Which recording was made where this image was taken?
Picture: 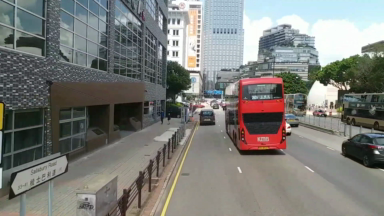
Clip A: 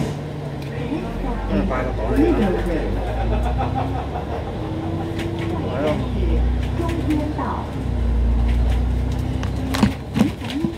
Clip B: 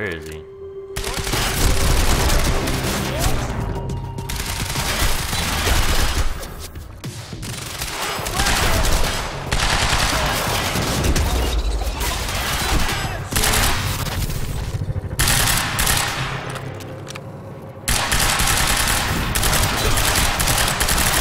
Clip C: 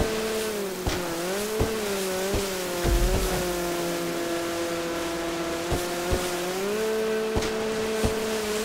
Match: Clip A